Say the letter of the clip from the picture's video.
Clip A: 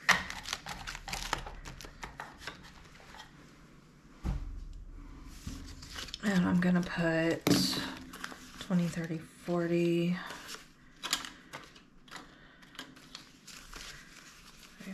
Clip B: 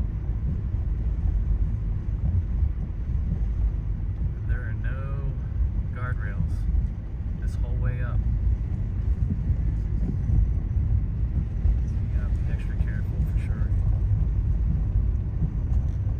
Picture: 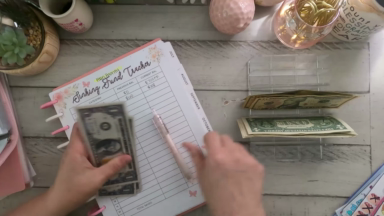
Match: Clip A